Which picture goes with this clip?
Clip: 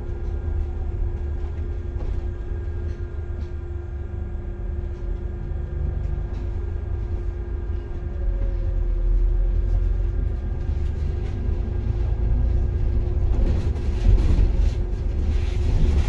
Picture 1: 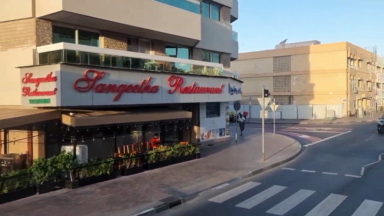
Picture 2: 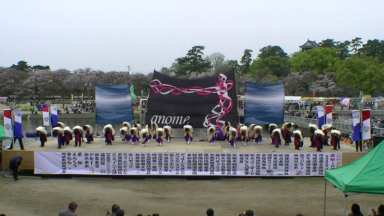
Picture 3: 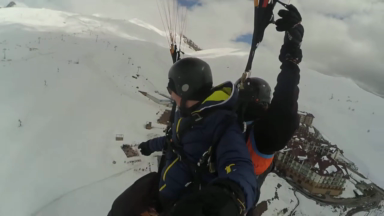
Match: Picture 1